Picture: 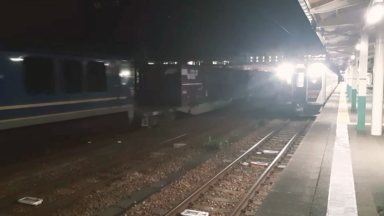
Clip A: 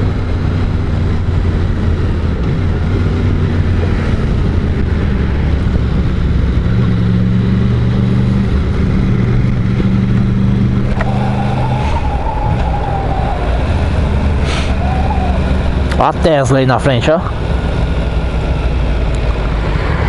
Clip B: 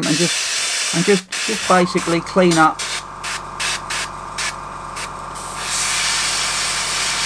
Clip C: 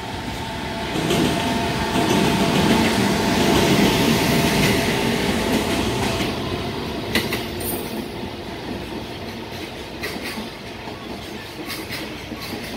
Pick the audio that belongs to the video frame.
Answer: C